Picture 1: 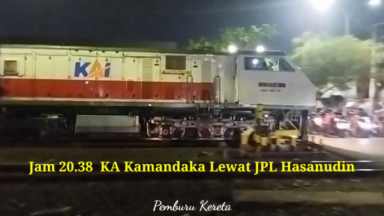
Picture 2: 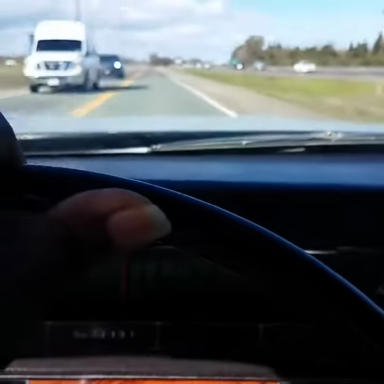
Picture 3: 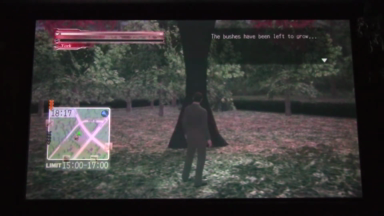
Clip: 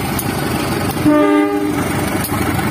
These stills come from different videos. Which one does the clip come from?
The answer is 1